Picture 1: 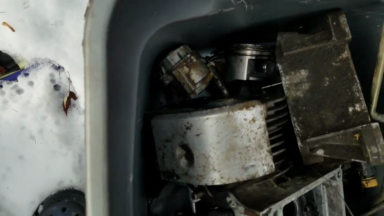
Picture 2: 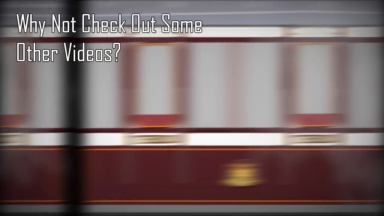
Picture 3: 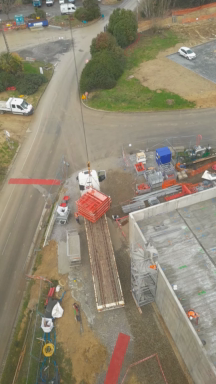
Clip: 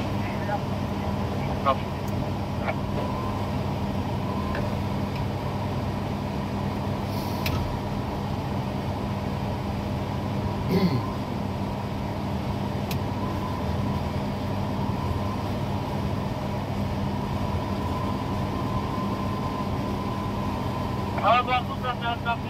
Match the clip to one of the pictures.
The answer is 3